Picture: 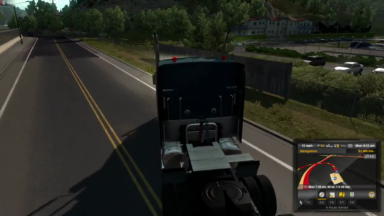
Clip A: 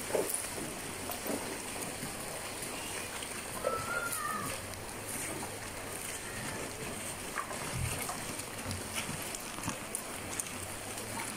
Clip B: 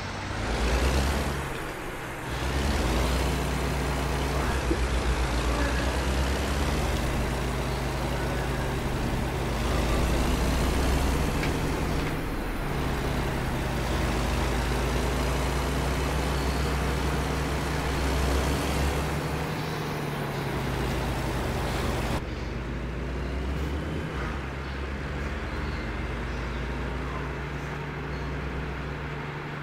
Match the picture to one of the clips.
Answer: B